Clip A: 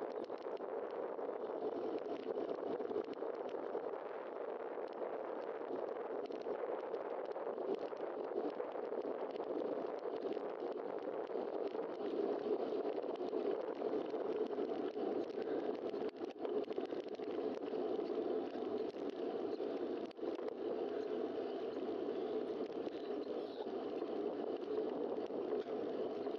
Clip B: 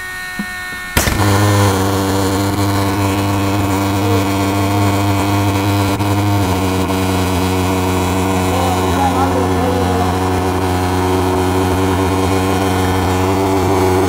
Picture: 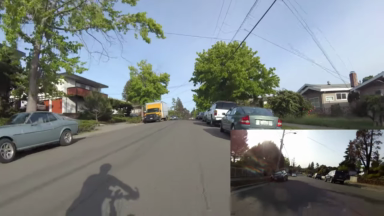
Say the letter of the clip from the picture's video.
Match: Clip A